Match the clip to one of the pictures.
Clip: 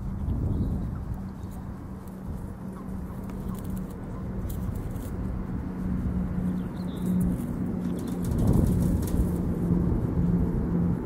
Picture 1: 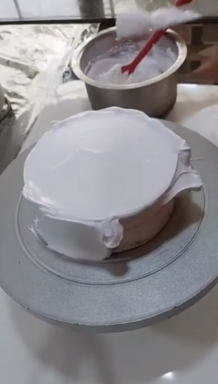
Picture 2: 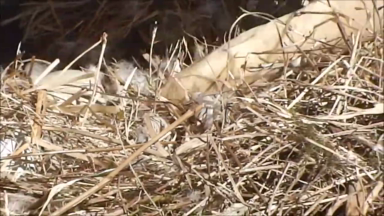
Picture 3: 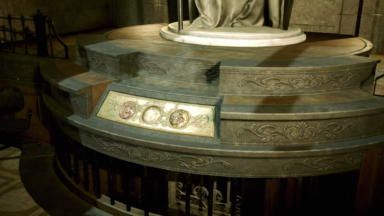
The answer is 2